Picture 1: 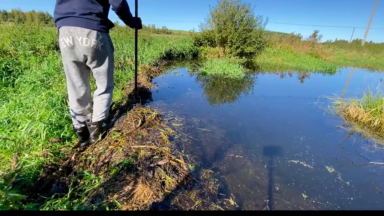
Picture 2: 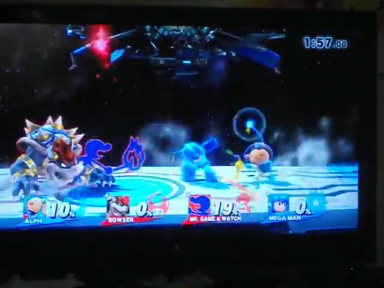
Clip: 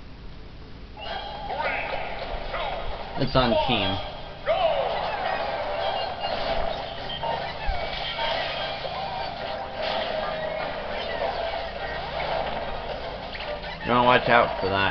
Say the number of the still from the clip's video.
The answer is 2